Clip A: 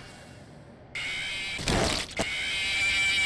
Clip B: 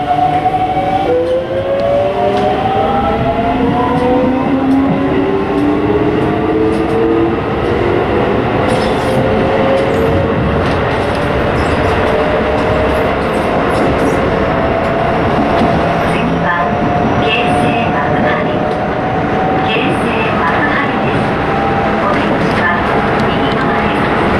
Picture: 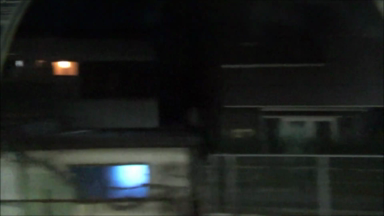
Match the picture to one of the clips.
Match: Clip B